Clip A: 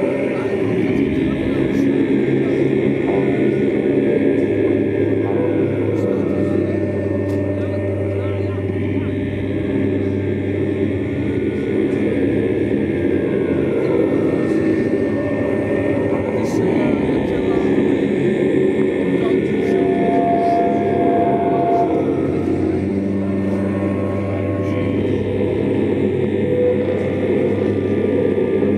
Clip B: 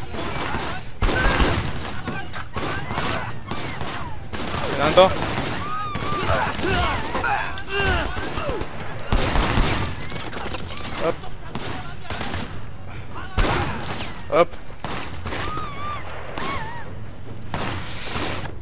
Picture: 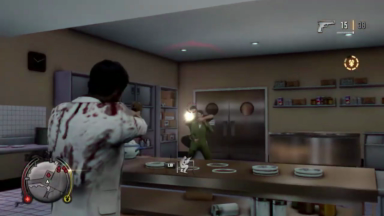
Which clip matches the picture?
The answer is B